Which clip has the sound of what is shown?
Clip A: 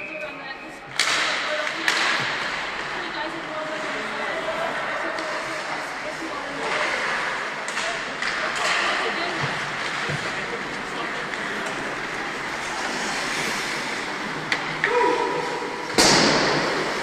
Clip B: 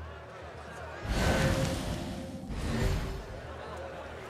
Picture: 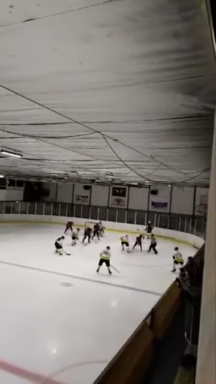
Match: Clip A